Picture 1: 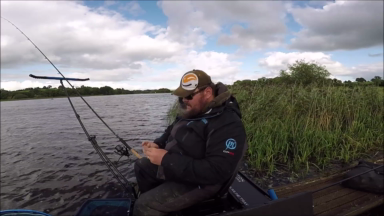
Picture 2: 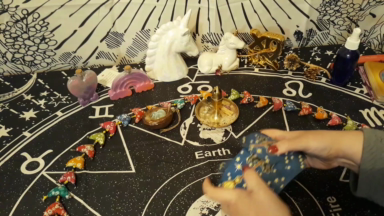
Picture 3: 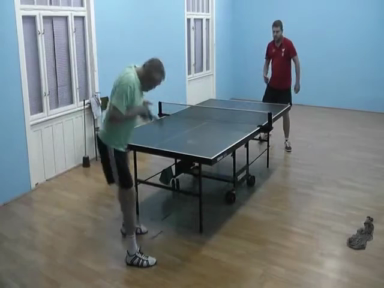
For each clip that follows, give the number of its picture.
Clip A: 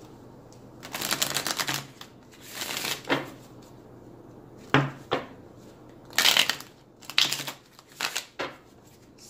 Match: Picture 2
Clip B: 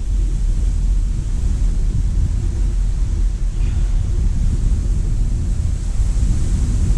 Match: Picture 1